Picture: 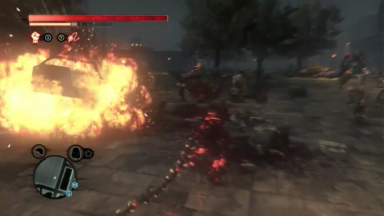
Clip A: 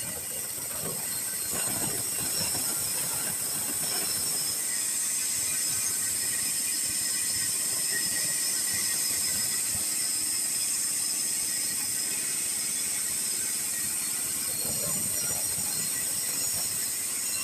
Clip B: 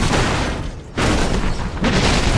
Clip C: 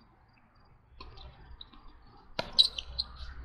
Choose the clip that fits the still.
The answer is B